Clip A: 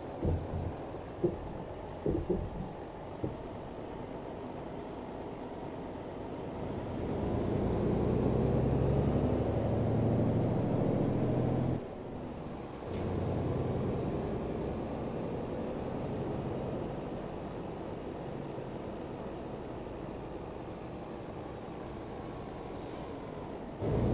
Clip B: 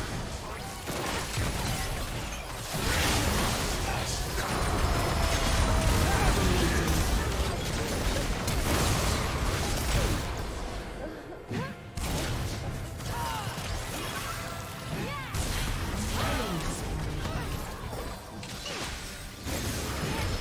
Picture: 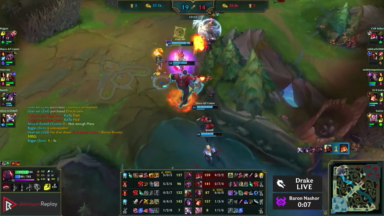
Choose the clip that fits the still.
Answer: B